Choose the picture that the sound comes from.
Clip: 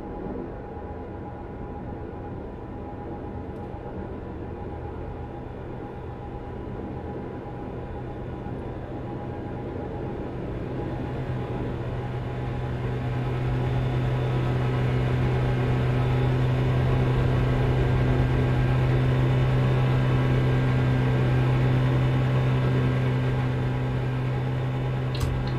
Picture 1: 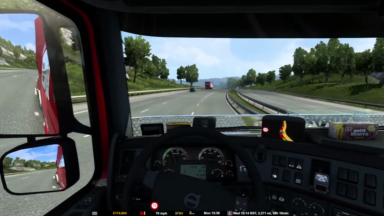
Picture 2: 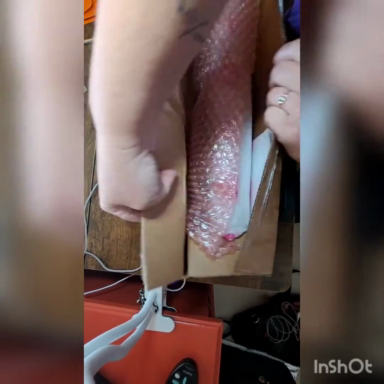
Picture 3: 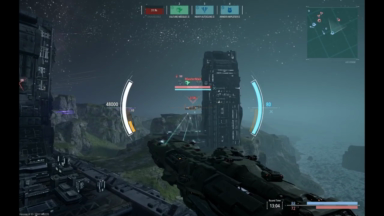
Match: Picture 1